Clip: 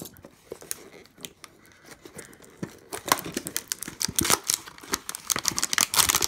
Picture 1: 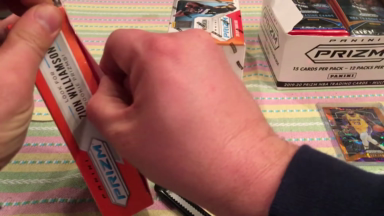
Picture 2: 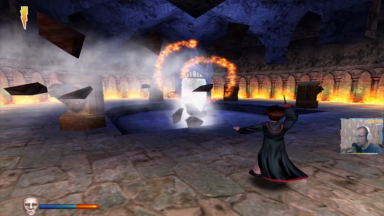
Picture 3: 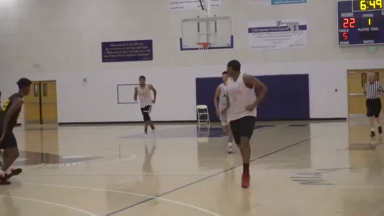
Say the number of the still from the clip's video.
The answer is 1